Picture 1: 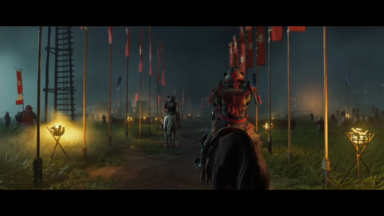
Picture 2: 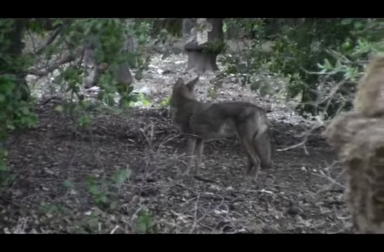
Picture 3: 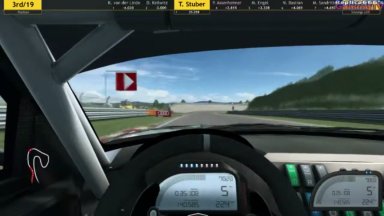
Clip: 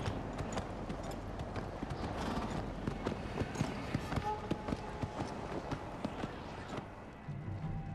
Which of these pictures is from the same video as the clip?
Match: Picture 1